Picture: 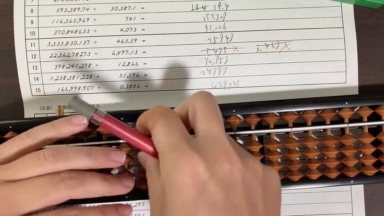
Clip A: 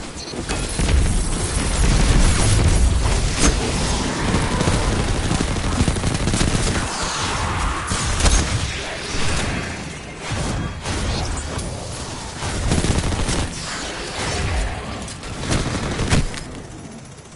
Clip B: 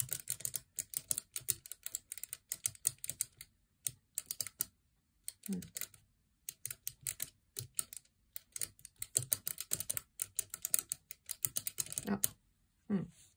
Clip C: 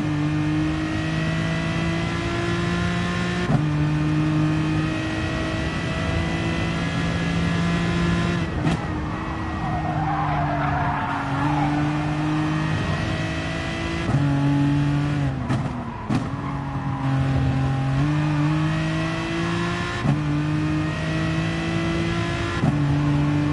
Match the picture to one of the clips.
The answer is B